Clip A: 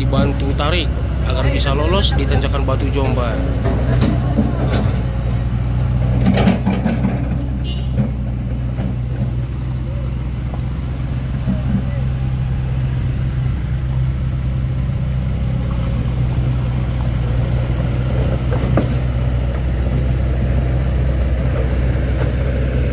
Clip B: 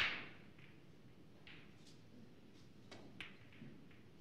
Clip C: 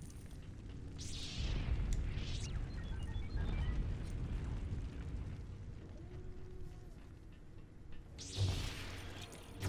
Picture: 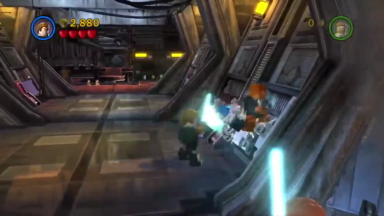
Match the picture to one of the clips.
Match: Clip C